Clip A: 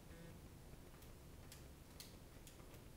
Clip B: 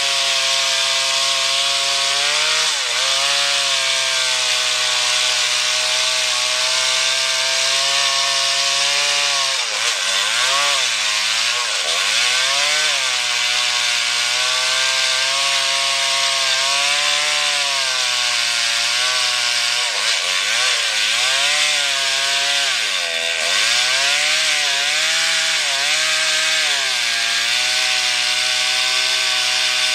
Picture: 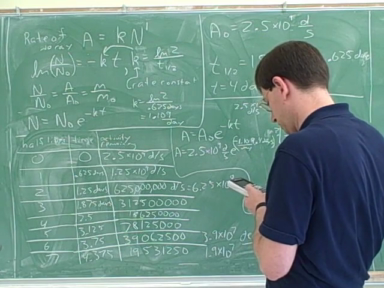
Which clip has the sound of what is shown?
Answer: A